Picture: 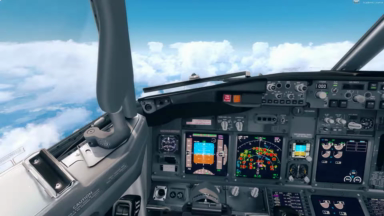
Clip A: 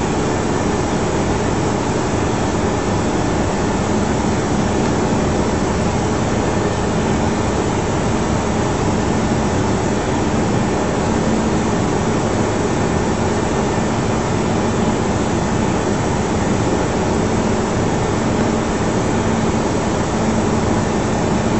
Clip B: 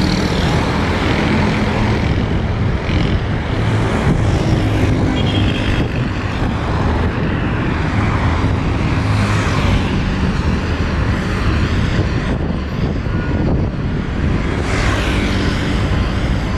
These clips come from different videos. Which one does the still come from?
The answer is A